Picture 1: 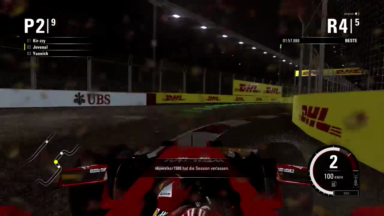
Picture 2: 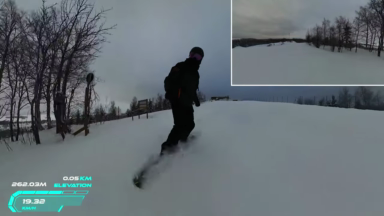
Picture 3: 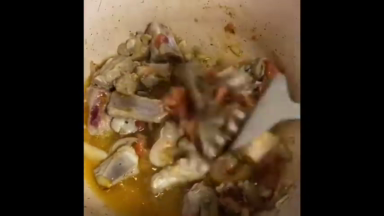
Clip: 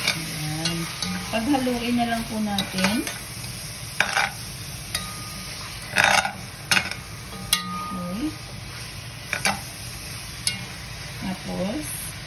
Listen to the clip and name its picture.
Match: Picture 3